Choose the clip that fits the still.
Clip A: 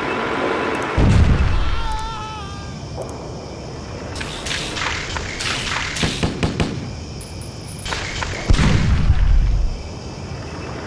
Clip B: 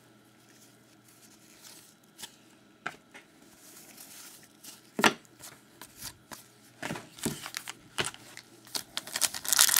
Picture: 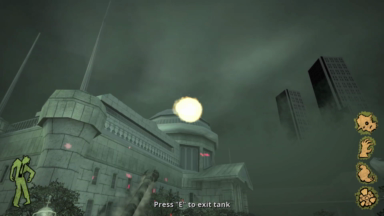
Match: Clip A